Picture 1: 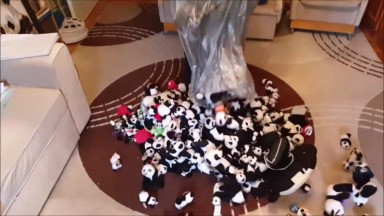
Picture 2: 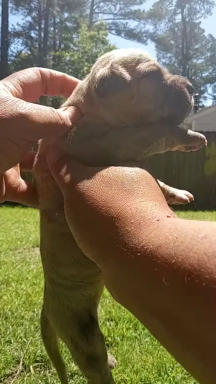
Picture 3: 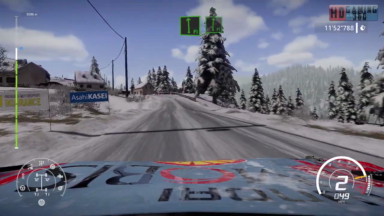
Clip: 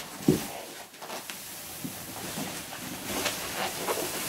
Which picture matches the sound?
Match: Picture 1